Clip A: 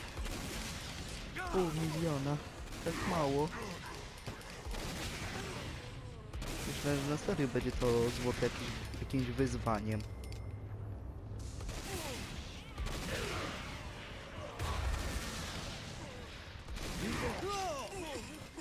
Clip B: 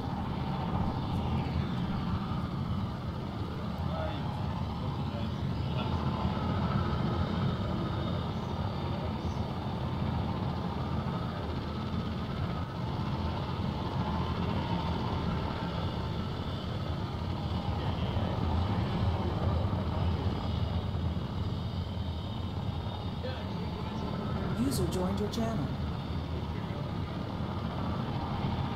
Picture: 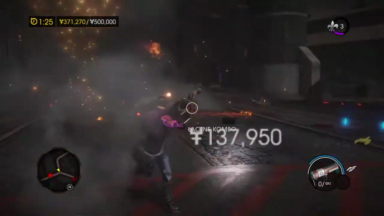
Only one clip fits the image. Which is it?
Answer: A